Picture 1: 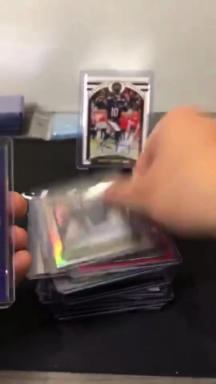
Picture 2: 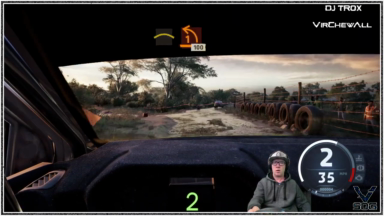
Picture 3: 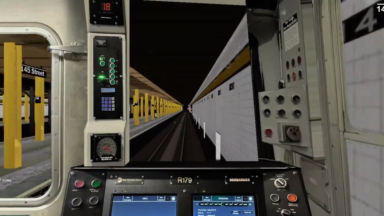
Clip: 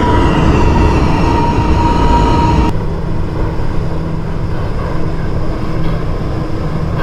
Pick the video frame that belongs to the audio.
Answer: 3